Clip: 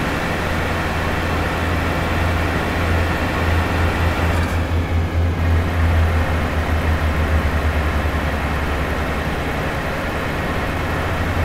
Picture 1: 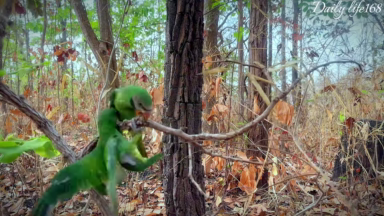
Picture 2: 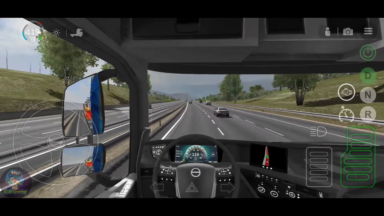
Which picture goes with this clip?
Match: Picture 2